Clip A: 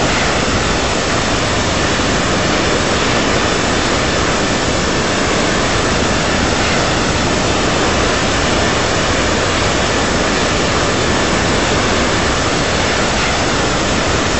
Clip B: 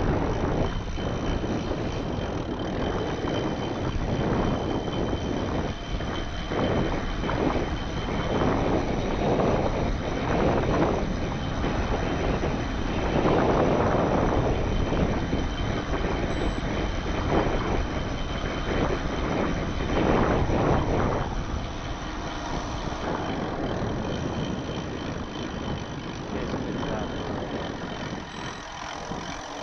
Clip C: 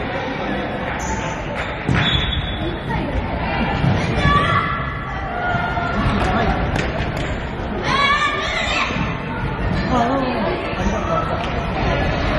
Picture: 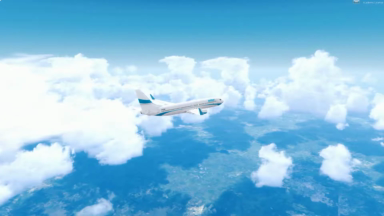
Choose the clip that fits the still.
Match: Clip A